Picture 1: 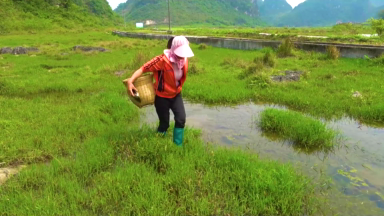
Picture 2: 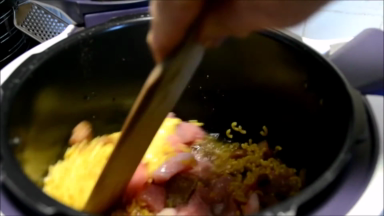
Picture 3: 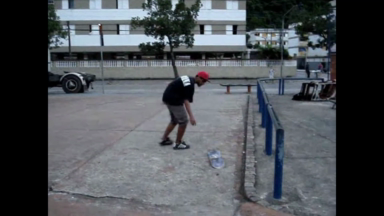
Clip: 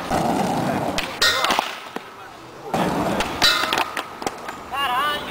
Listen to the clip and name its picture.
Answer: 3